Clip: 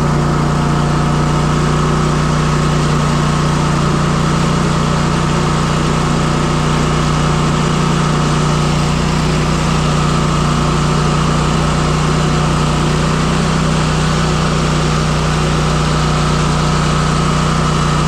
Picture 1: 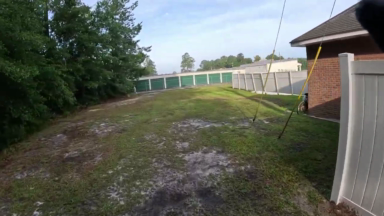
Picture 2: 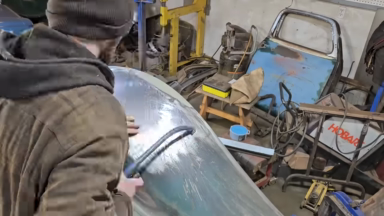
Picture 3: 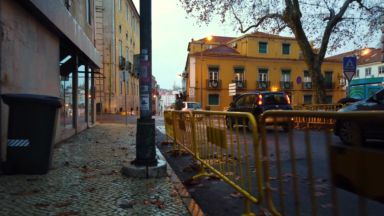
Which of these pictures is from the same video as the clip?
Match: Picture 1